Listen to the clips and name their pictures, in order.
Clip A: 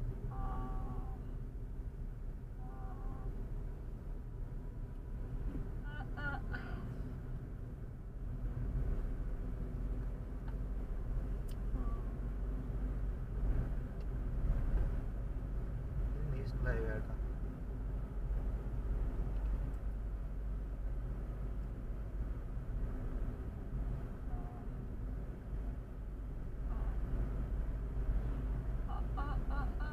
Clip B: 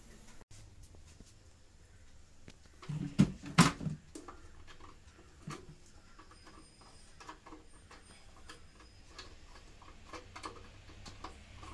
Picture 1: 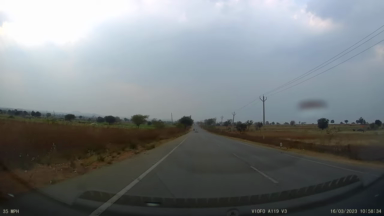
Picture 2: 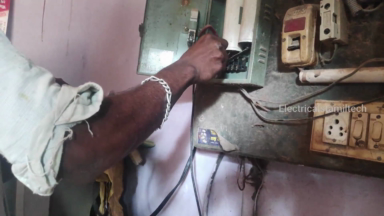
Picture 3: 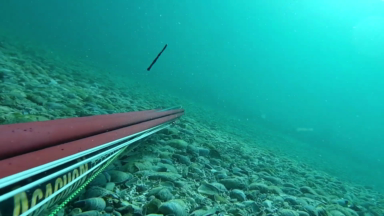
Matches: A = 1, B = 2